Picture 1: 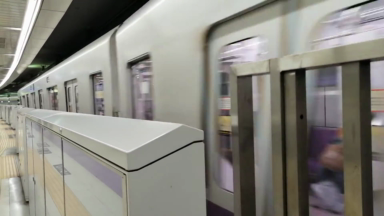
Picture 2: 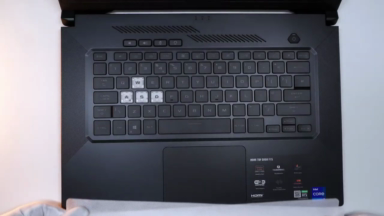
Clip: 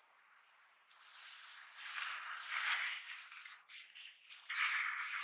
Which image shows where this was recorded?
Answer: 2